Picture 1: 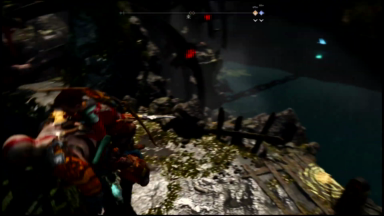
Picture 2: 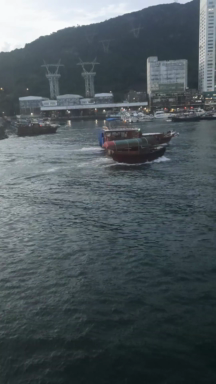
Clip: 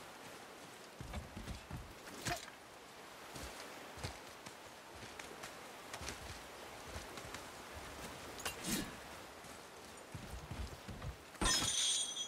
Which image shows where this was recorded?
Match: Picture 1